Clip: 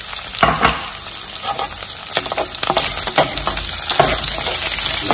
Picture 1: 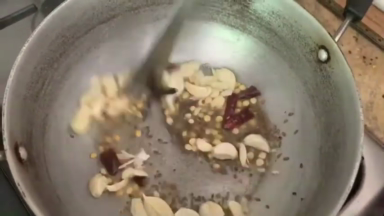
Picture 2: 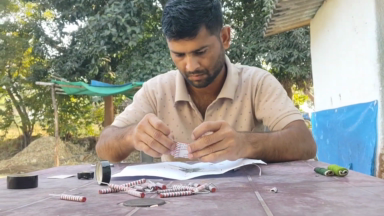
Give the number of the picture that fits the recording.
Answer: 1